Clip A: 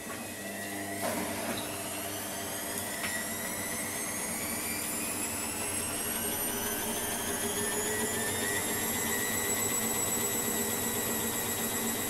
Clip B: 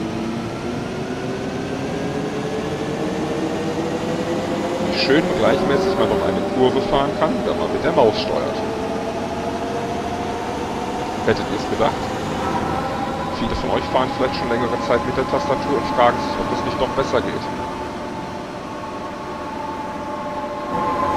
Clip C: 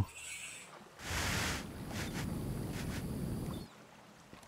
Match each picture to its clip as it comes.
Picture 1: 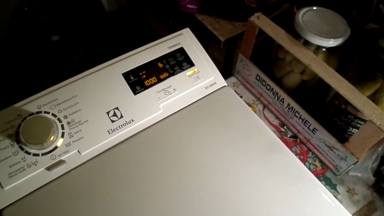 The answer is A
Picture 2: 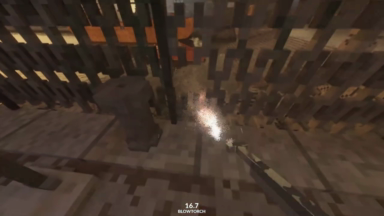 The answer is C